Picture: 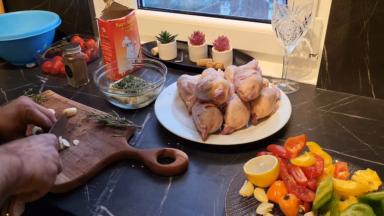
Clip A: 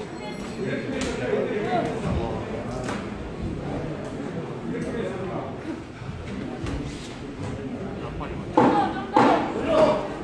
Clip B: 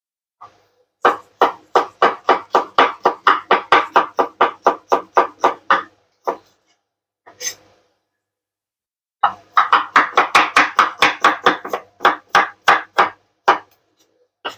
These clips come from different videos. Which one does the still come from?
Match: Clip B